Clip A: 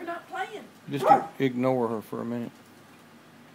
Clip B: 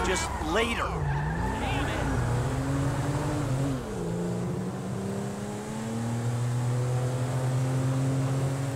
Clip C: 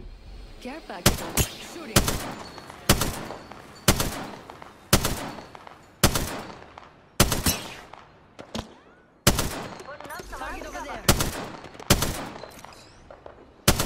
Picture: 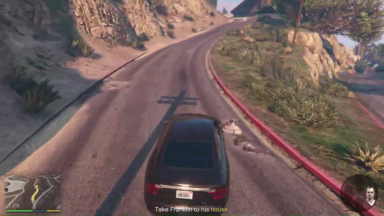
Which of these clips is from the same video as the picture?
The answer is B